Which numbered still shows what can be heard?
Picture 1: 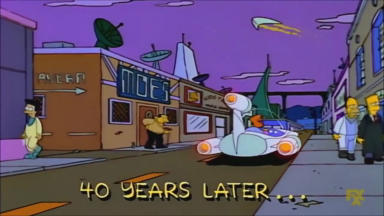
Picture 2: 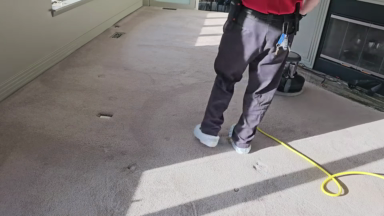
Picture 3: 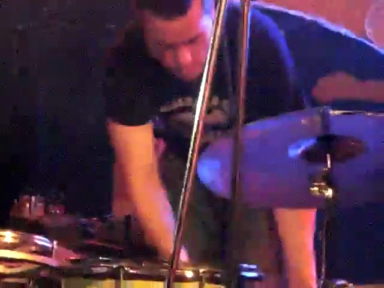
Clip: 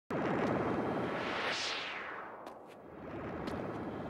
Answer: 1